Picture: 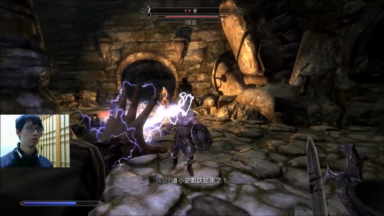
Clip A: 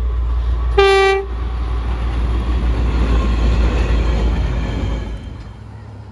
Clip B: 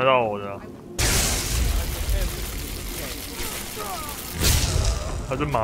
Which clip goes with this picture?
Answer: B